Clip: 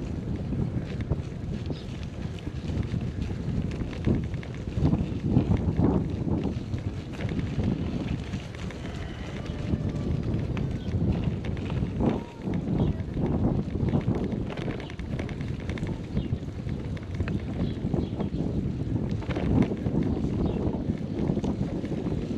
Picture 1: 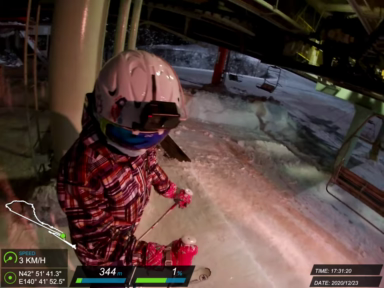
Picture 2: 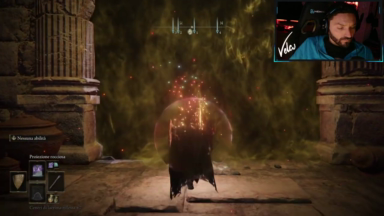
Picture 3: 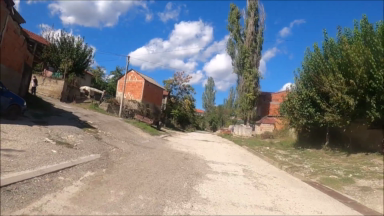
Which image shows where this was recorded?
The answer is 3